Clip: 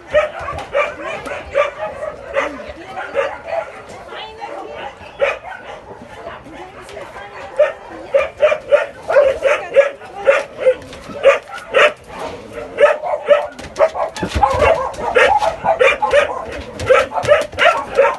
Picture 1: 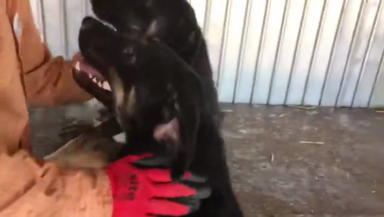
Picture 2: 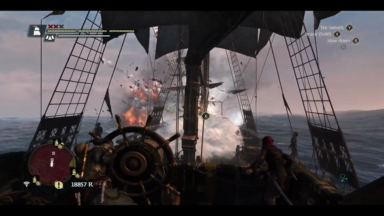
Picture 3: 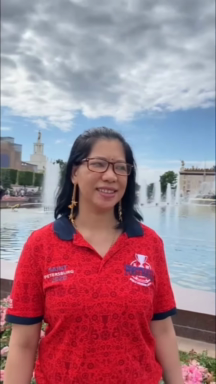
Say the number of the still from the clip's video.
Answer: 1